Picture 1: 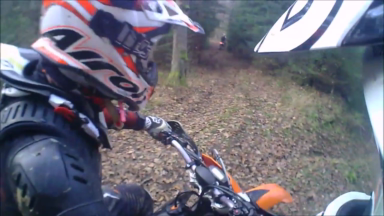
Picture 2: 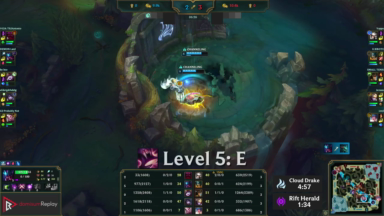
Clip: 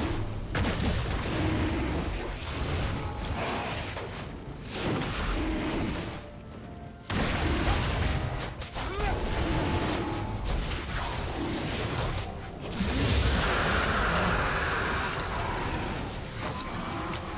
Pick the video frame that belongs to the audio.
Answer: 2